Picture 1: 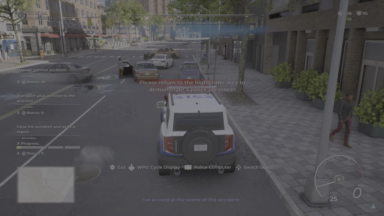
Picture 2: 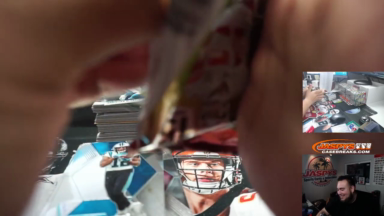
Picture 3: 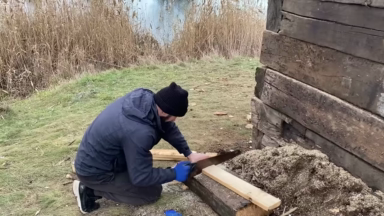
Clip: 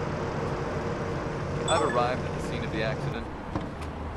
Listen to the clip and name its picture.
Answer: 1